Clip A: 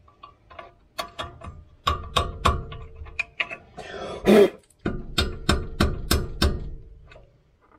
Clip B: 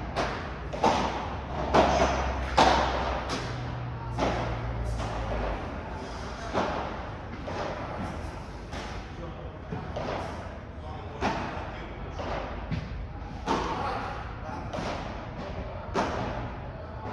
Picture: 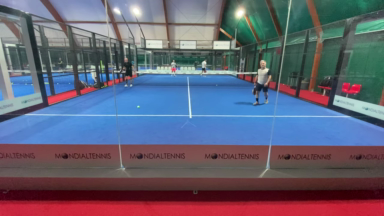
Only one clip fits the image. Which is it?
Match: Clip B